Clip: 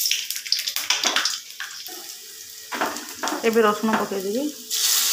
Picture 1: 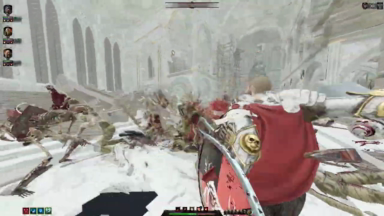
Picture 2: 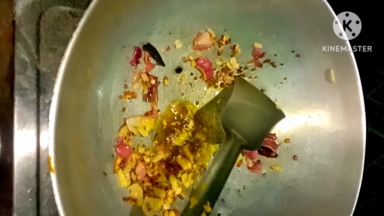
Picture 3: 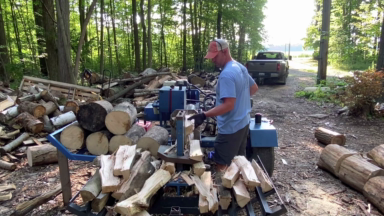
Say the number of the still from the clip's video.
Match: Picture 2